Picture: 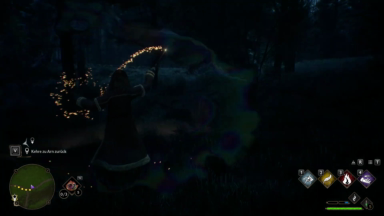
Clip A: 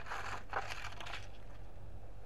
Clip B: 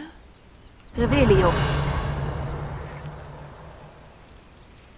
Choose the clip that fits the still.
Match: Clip B